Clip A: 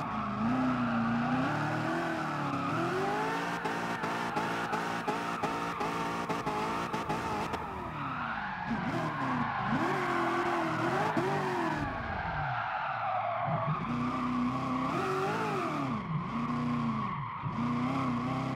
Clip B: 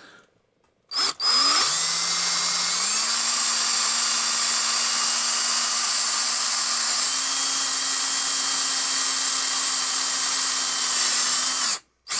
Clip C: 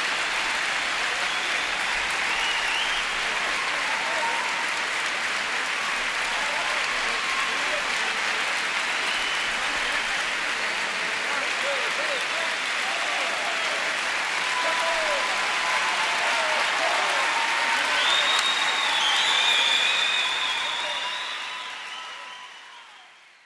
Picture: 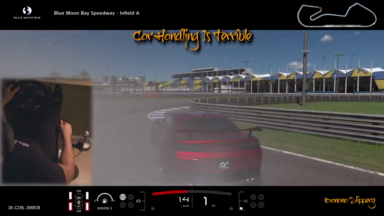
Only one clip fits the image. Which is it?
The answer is A